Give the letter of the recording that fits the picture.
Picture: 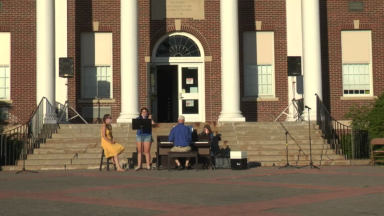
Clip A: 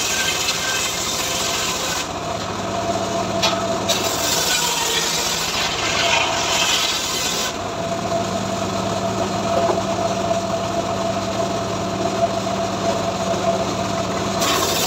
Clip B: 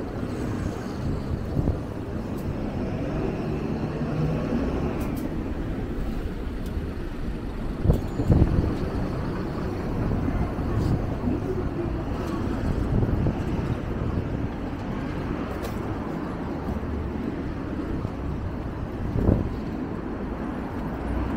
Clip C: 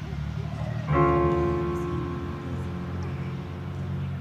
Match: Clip C